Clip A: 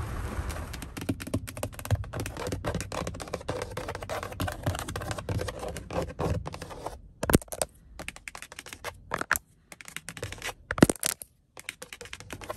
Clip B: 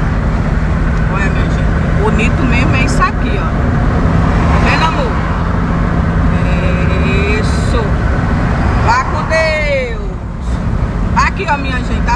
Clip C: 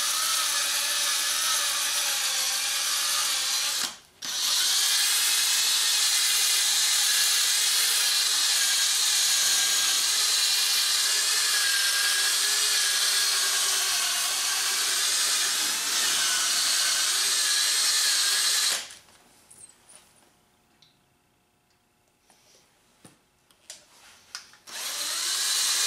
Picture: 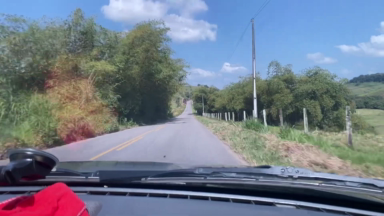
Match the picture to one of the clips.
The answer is B